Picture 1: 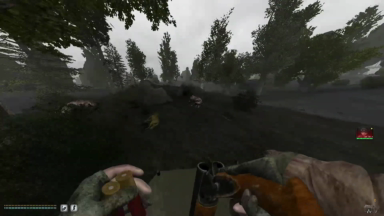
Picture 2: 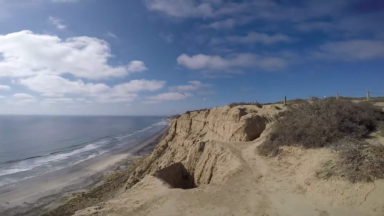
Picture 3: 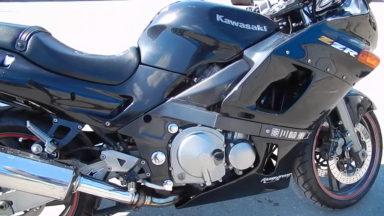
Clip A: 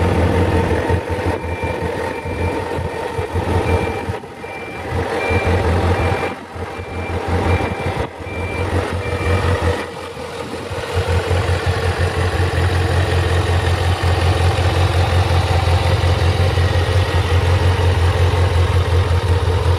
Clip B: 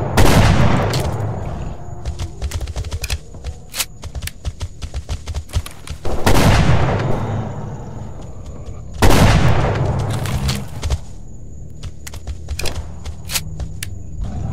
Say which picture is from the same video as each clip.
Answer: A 3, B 1